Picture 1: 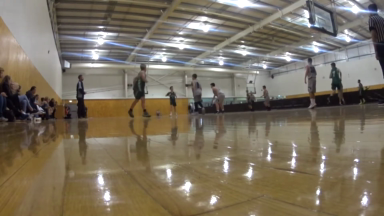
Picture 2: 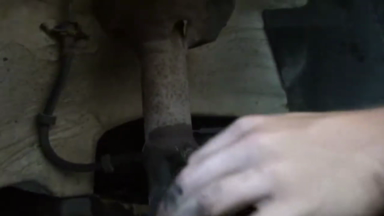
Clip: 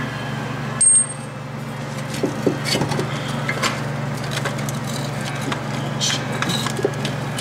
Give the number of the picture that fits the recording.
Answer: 2